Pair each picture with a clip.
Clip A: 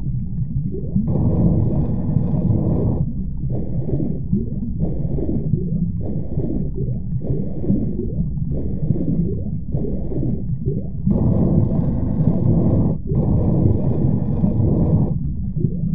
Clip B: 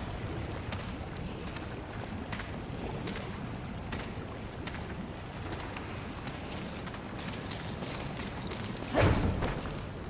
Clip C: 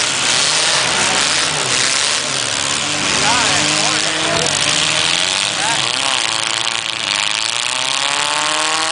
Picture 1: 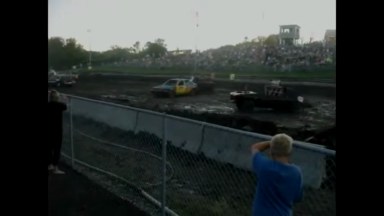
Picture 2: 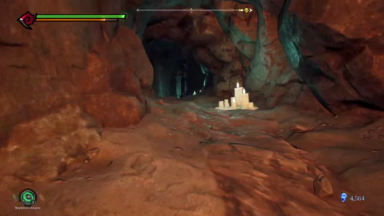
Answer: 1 C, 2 B